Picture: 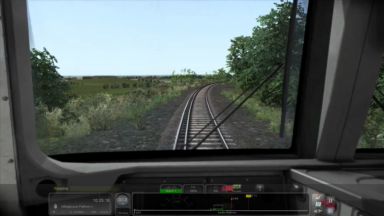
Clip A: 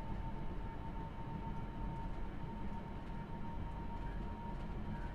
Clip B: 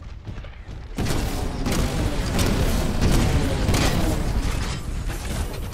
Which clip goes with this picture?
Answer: A